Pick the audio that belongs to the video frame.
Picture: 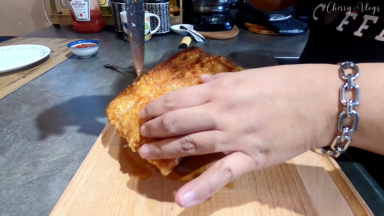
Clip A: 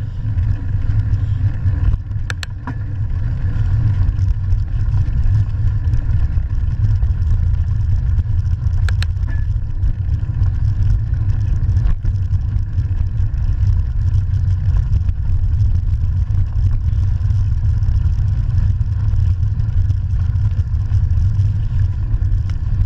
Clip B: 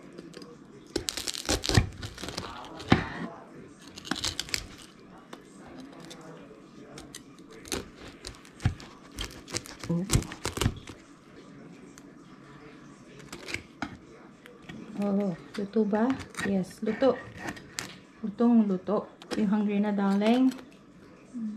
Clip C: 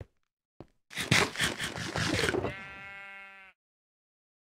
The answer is B